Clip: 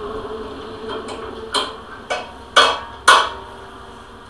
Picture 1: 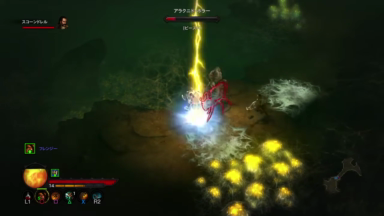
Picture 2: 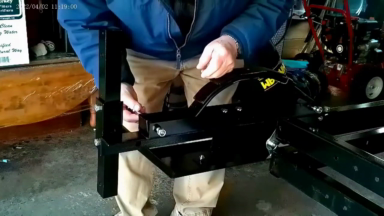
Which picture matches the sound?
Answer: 2